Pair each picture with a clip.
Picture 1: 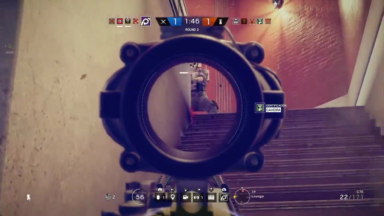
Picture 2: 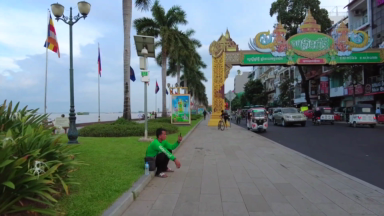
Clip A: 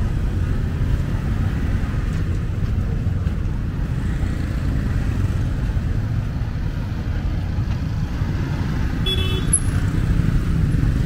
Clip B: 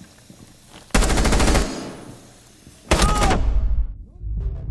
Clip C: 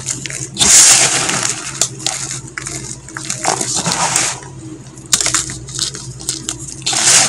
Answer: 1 B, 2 A